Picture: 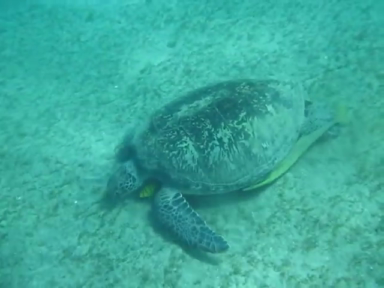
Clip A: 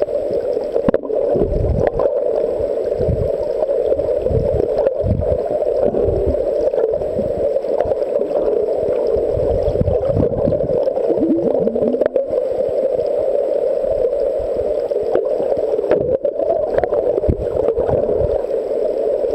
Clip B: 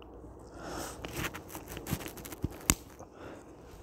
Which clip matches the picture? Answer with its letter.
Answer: A